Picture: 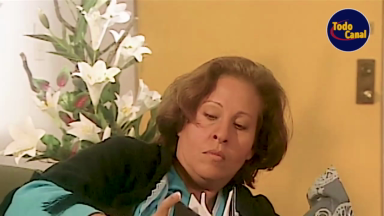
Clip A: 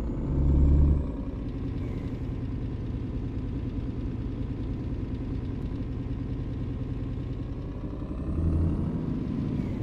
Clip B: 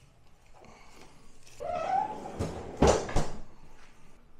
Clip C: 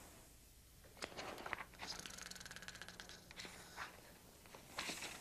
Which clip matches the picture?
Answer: C